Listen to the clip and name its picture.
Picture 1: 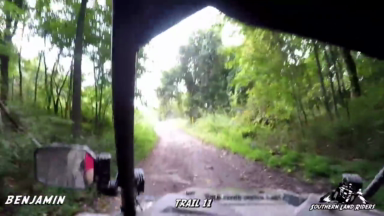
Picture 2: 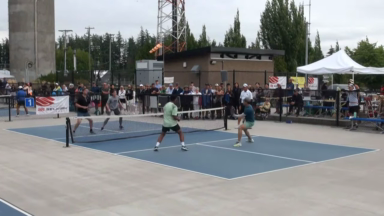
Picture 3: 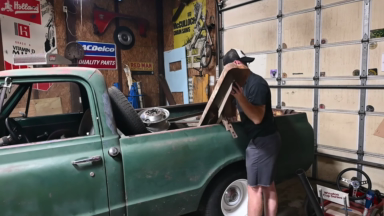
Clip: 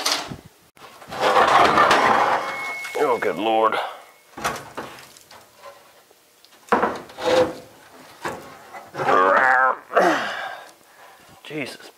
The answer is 3